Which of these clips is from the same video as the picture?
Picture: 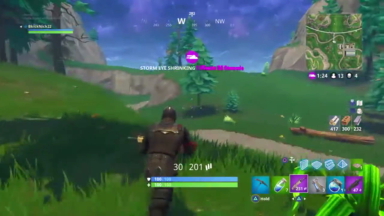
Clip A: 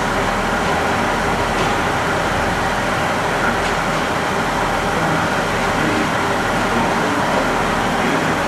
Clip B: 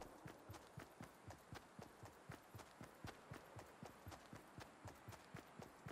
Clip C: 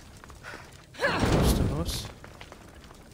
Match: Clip B